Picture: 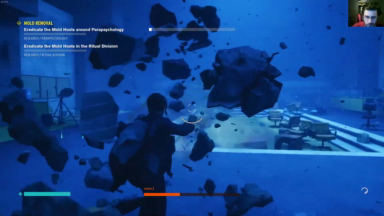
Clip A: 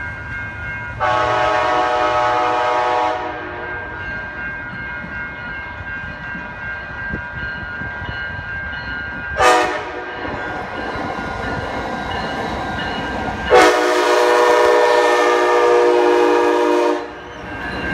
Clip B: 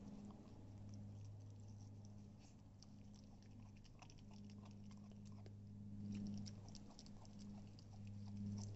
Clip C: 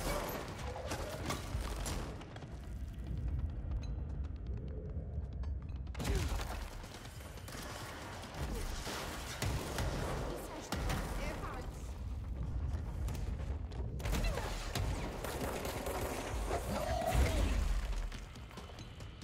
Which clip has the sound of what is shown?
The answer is C